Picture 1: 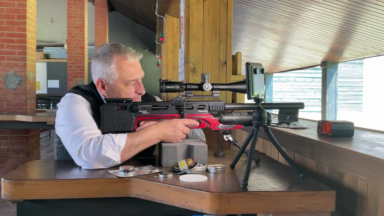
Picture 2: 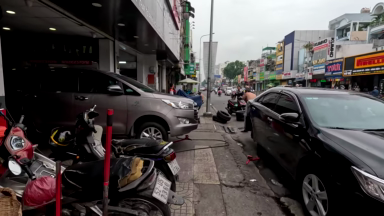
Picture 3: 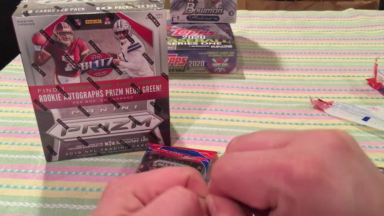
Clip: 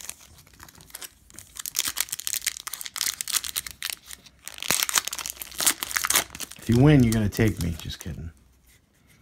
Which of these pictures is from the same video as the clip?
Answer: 3